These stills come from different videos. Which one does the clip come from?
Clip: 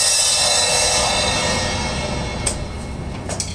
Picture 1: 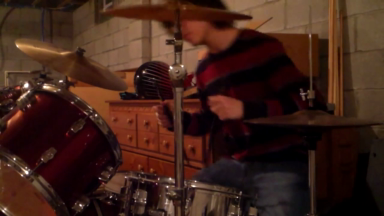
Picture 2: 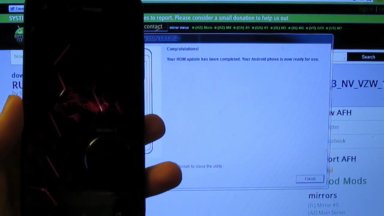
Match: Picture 1